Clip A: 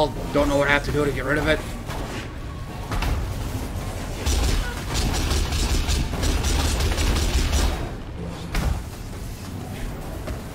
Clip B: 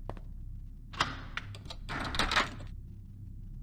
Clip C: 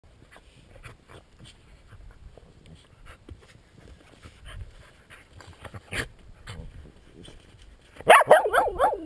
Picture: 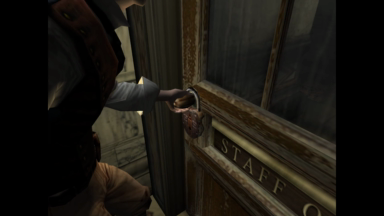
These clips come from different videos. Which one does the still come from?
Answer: B